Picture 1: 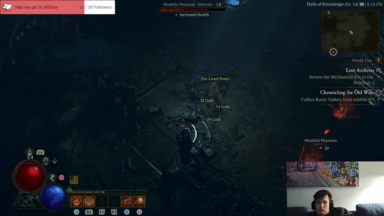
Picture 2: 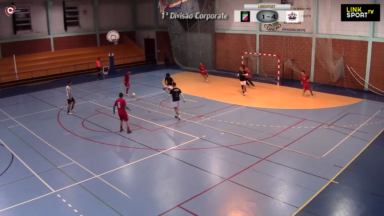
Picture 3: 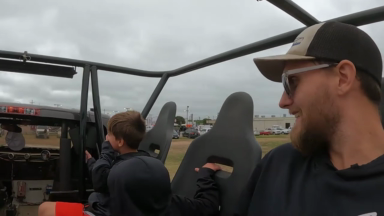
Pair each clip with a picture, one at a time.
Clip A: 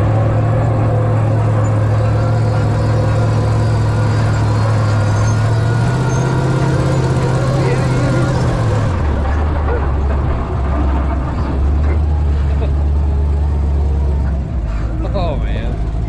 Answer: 3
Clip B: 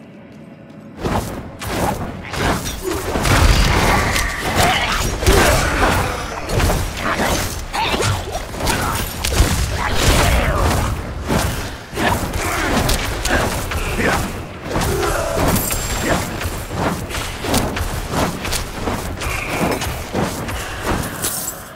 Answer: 1